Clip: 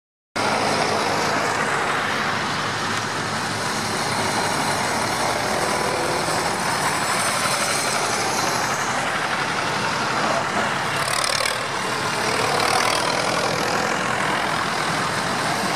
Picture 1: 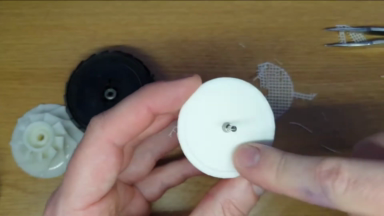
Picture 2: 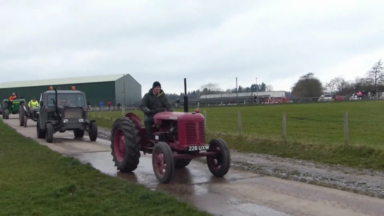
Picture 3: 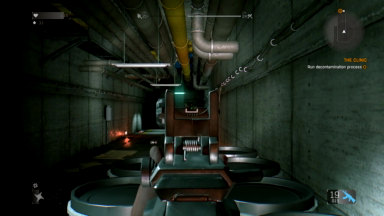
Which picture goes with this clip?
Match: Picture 2